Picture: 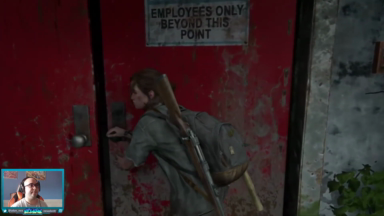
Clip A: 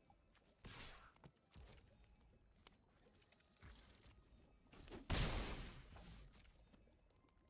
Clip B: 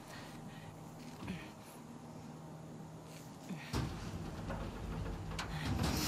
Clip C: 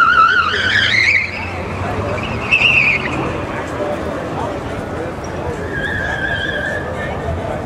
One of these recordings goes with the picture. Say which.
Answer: B